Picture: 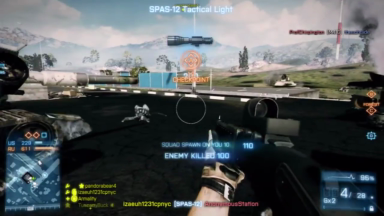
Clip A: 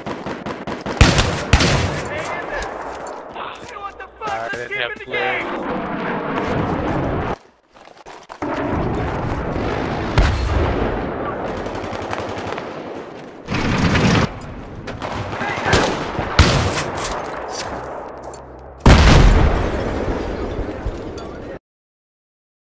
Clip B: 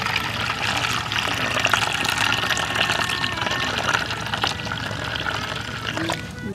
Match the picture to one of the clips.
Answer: A